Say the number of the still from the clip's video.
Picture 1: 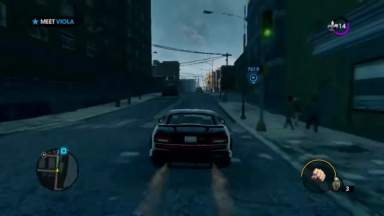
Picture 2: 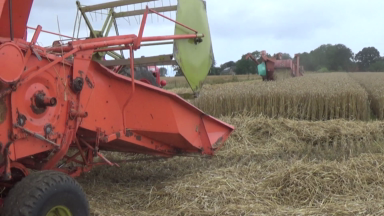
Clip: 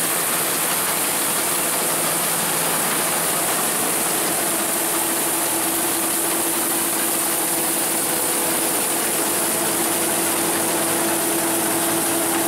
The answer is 2